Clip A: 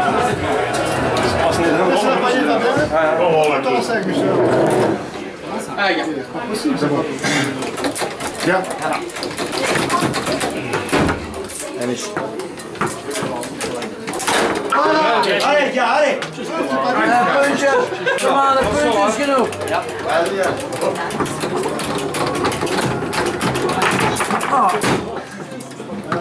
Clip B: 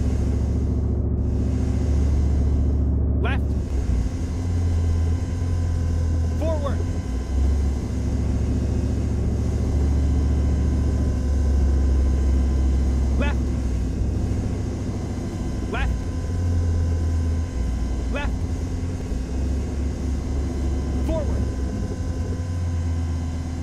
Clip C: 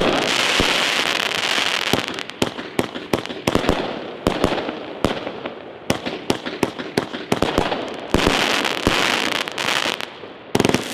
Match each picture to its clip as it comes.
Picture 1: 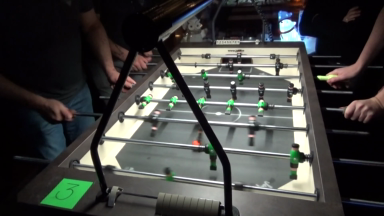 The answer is A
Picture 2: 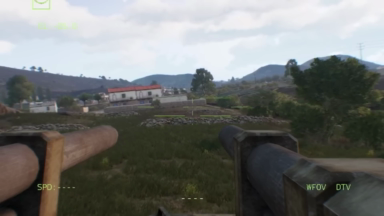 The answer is B